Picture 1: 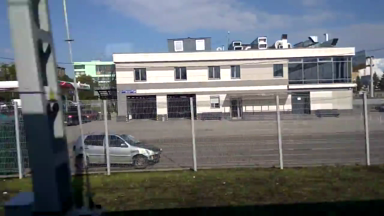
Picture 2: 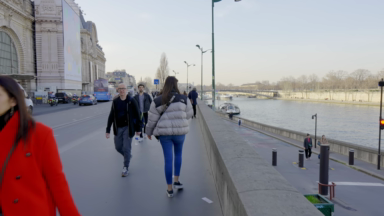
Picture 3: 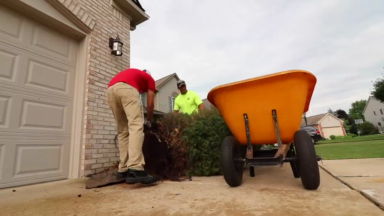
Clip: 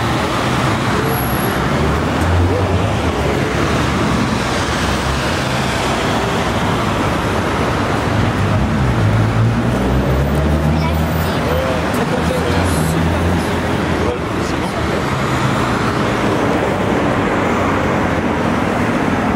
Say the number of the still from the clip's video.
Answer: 2